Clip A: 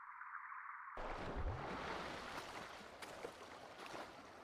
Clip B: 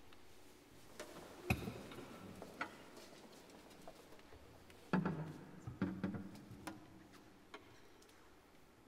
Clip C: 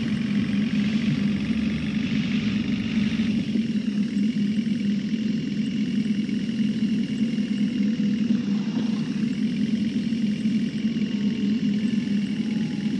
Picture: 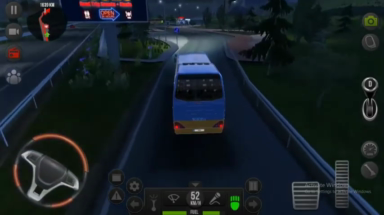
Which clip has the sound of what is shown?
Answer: C